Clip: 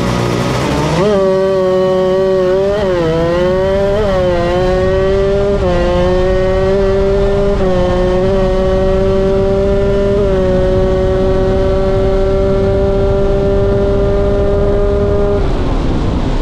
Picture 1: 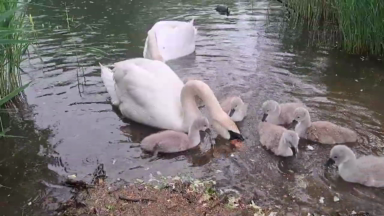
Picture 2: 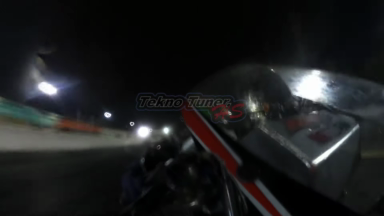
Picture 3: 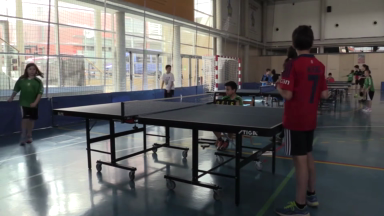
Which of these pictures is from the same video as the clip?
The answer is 2